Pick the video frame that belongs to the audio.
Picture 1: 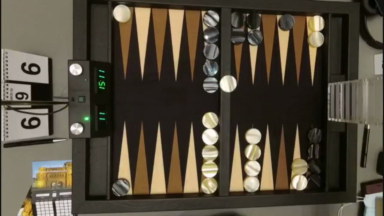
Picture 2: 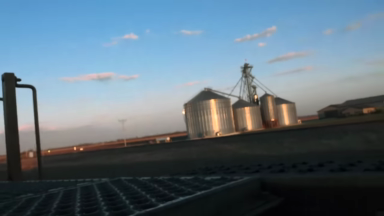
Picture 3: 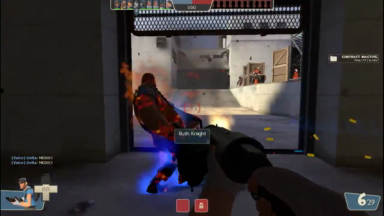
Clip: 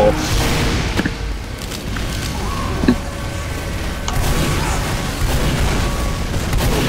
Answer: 3